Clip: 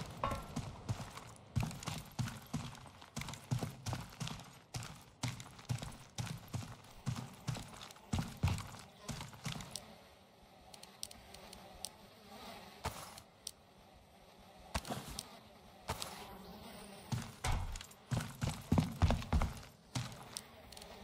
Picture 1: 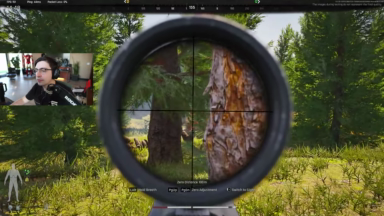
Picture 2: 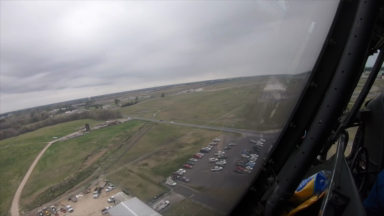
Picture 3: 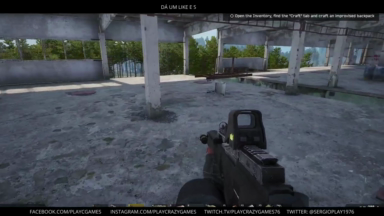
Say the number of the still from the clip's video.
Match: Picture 3